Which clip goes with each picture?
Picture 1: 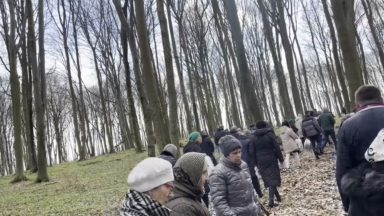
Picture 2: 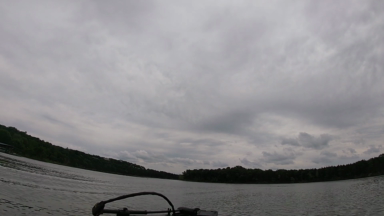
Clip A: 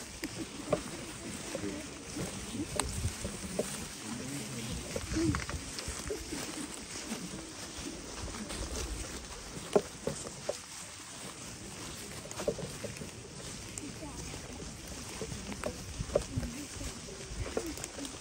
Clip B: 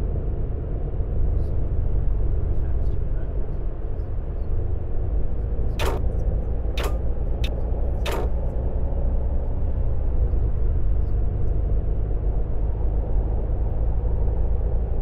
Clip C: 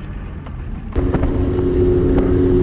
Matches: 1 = A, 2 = C